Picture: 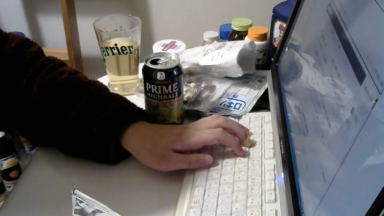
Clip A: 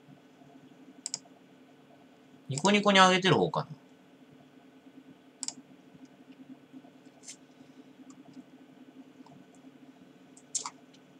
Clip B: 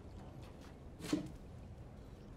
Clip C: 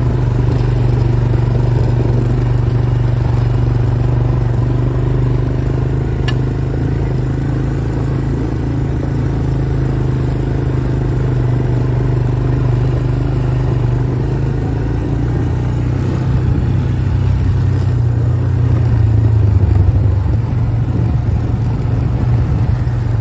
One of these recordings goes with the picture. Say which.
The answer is A